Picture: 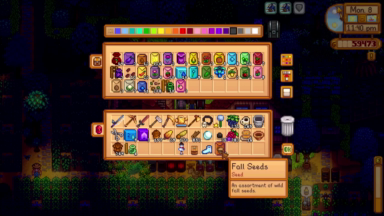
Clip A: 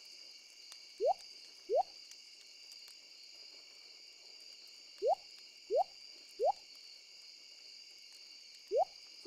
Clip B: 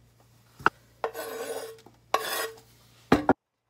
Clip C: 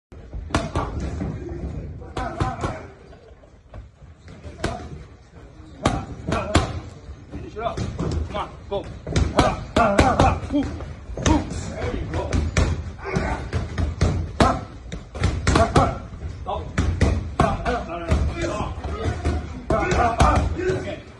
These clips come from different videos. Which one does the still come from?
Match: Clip A